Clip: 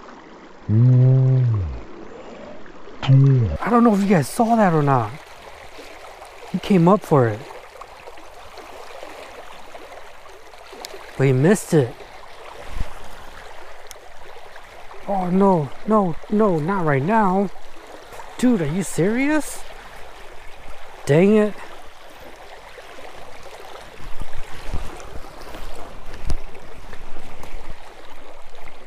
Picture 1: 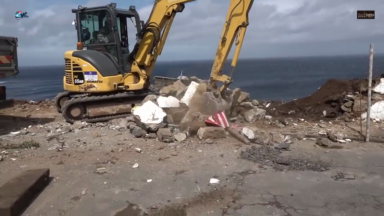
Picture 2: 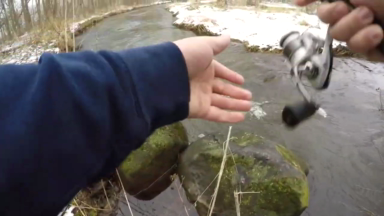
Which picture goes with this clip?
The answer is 2